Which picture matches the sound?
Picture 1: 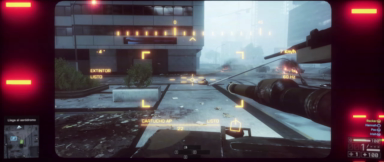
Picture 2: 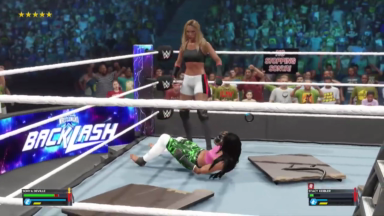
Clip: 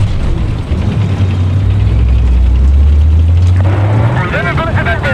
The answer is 1